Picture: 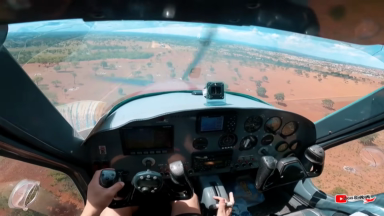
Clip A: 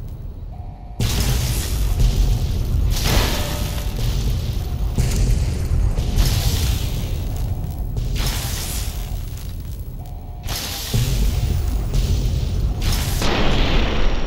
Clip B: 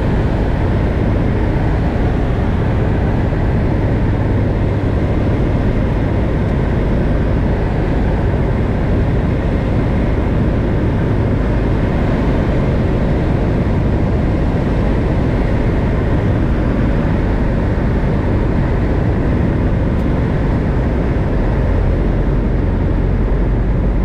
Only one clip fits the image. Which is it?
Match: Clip B